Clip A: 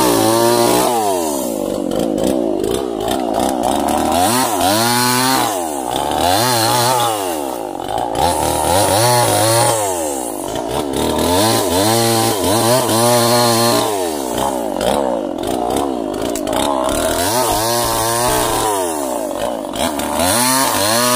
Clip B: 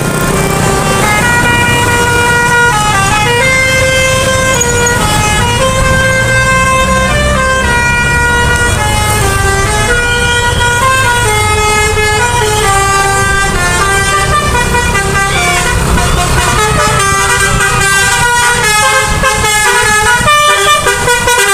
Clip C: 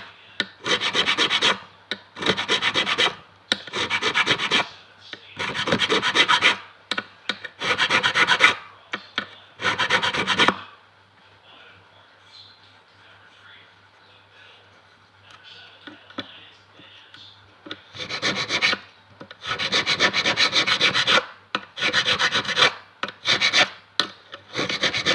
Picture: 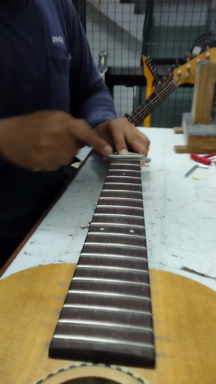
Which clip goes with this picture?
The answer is C